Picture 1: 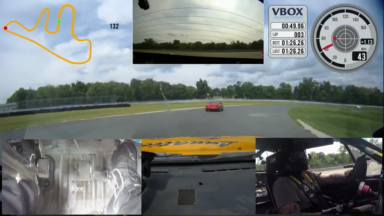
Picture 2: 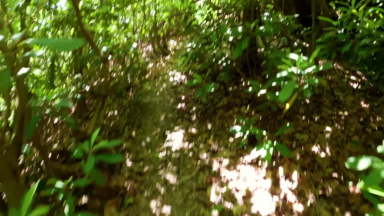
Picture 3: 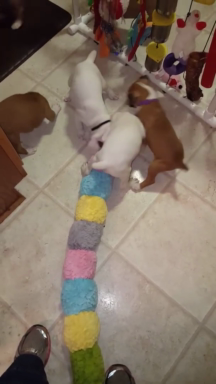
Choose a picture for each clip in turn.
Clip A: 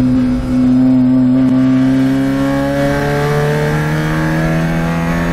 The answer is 1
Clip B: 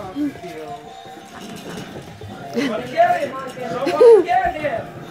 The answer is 3